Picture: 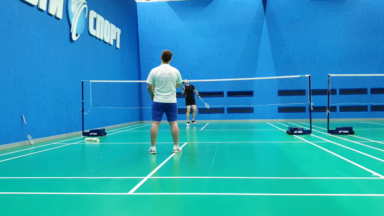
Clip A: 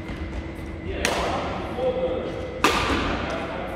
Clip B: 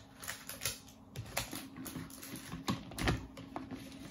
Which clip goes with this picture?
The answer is A